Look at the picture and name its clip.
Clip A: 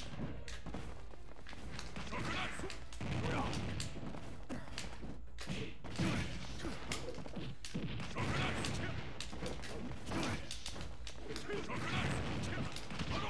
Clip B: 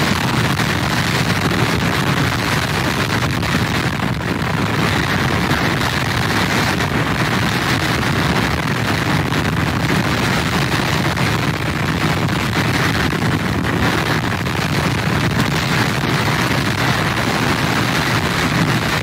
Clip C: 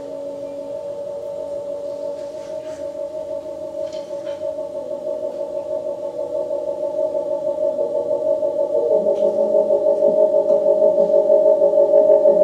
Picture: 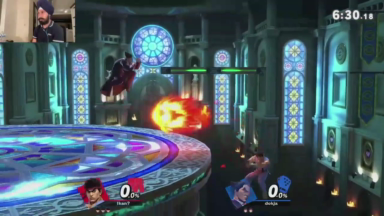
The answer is A